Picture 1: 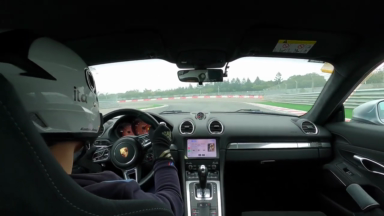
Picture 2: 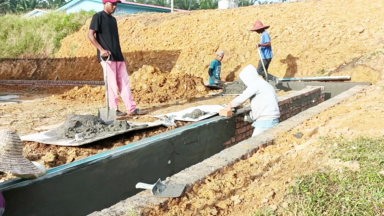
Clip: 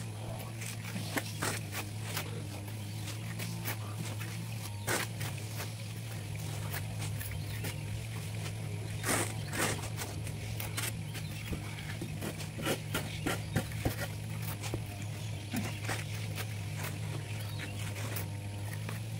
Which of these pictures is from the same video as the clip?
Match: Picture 2